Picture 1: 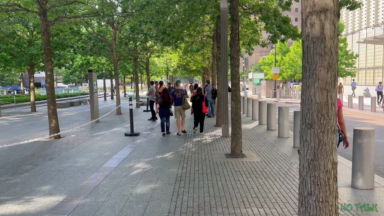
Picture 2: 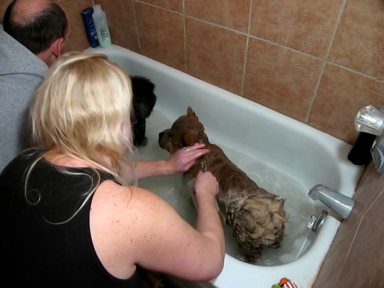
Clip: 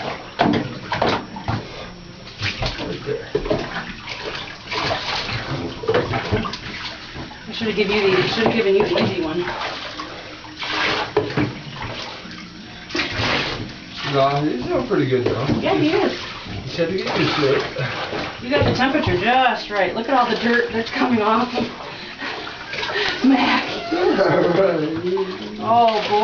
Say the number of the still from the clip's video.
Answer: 2